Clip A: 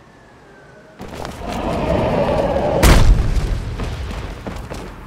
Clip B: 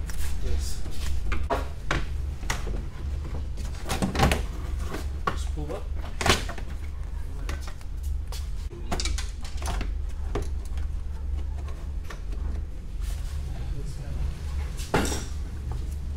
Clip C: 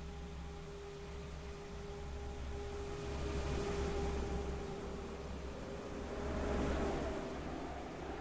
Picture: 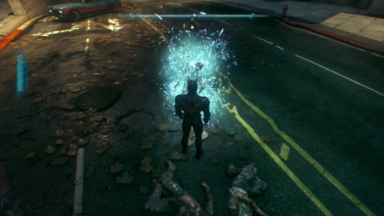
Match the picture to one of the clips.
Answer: A